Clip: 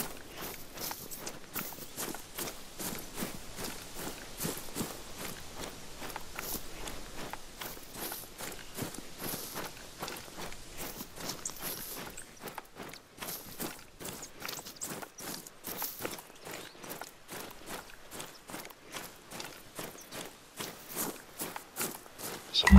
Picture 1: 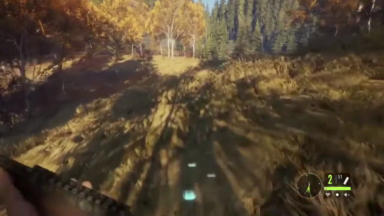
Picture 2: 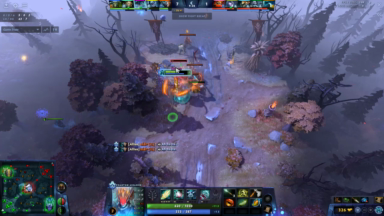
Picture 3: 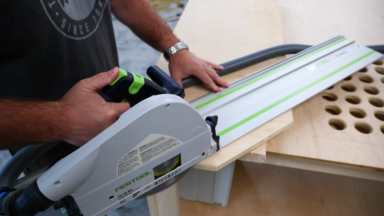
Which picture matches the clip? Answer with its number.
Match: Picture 1